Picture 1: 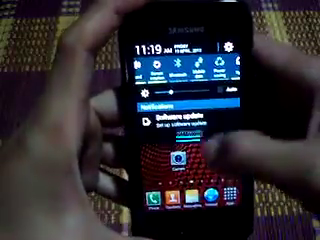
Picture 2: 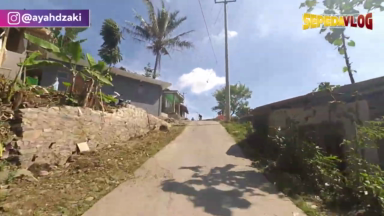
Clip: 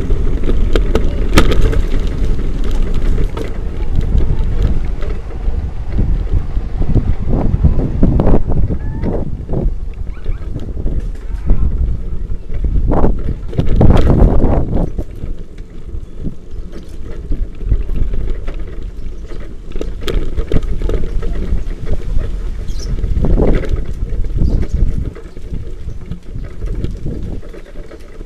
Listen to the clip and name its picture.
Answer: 2